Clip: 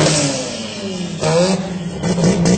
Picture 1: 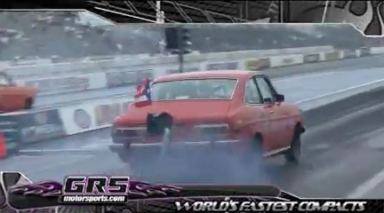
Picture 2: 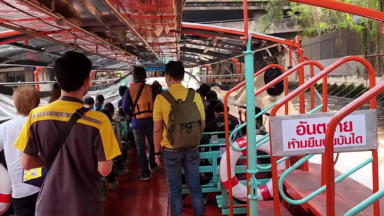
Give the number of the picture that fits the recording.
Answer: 1